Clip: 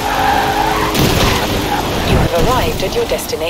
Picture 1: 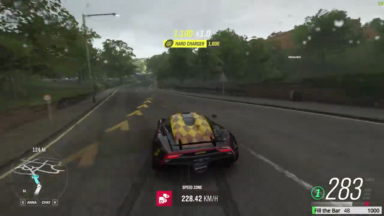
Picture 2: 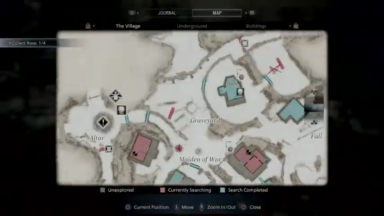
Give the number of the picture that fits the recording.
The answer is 1